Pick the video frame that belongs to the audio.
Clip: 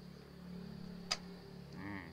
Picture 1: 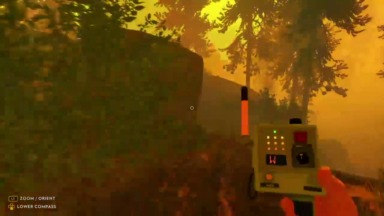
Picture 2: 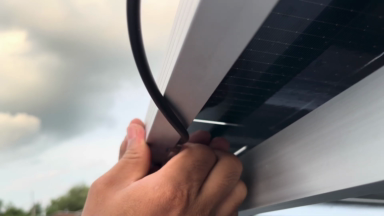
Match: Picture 2